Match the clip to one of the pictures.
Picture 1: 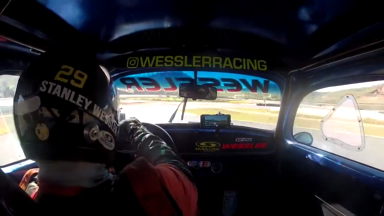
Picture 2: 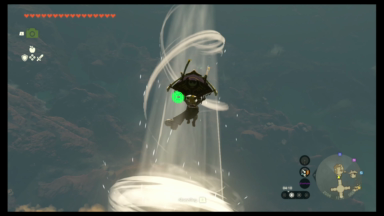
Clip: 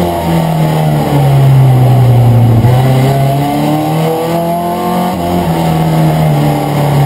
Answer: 1